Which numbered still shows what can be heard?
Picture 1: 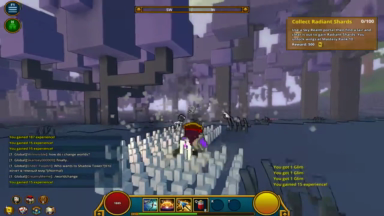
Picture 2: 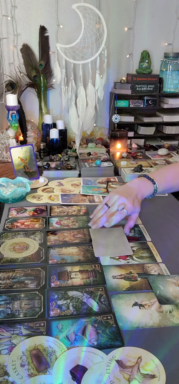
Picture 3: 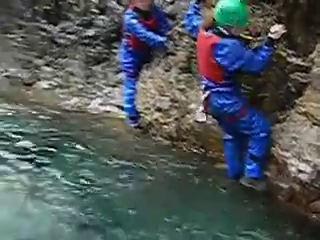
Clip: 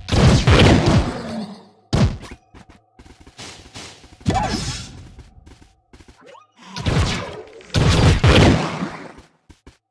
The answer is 1